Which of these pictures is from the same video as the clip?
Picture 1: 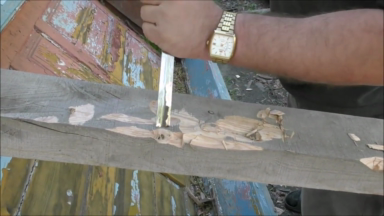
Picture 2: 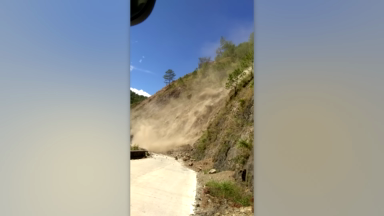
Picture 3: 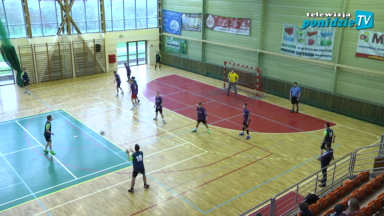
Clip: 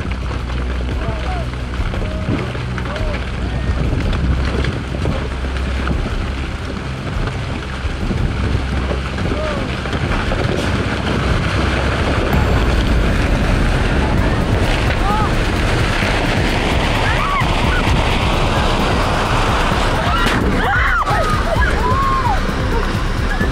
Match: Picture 2